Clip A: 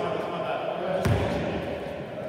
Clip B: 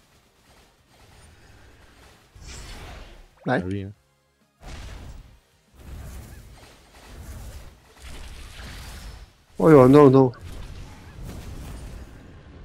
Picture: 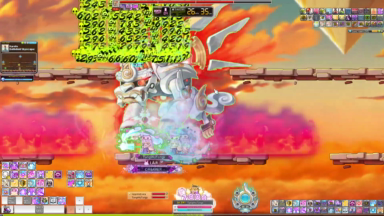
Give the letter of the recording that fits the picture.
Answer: B